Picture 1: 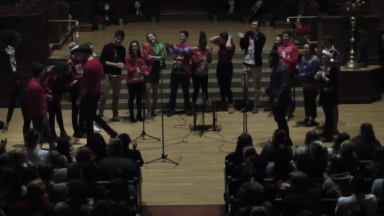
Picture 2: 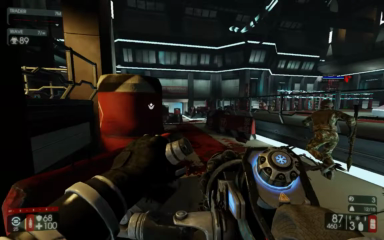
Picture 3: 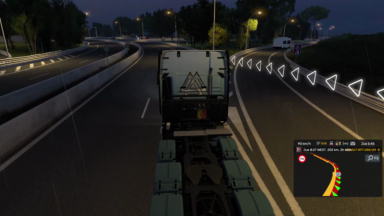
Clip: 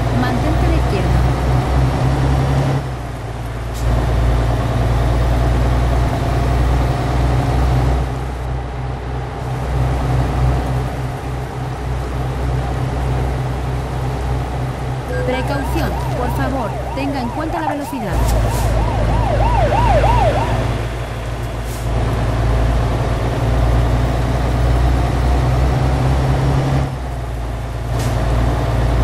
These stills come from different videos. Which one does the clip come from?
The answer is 3